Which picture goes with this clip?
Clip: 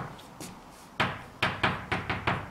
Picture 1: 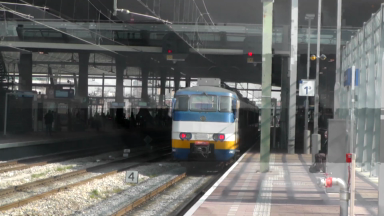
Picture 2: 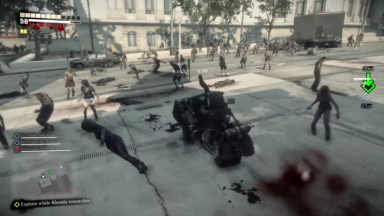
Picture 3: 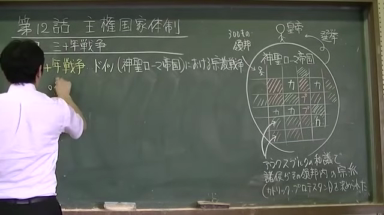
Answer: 3